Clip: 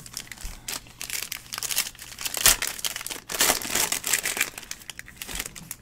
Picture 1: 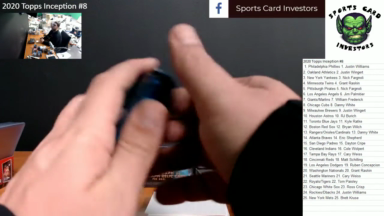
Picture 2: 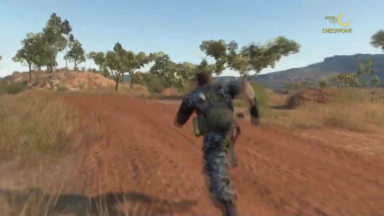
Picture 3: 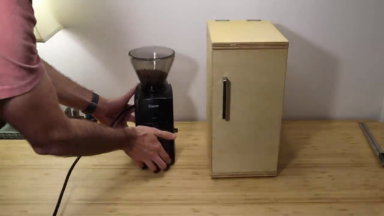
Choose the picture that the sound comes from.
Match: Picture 1